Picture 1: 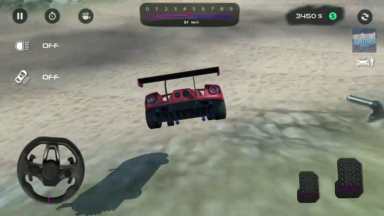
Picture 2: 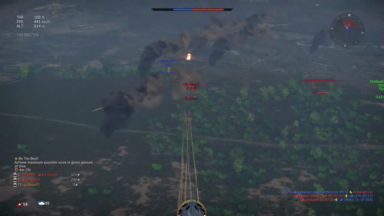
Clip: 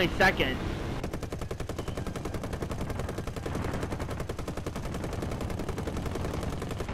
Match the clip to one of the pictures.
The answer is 2